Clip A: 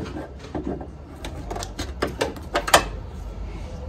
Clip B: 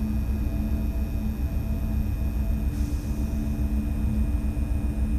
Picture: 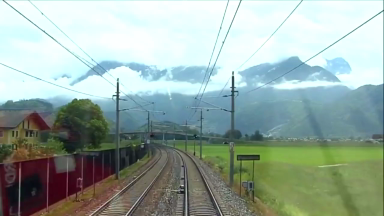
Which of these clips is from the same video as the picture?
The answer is B